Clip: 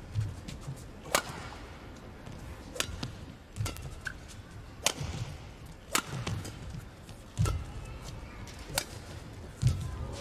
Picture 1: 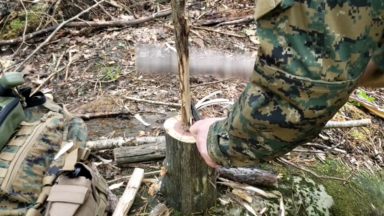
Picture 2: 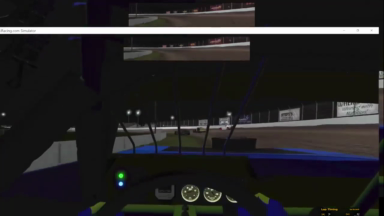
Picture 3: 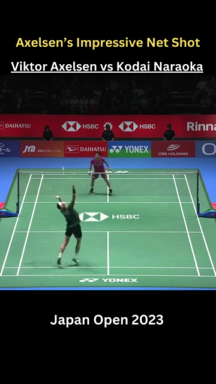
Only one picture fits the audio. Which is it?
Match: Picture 3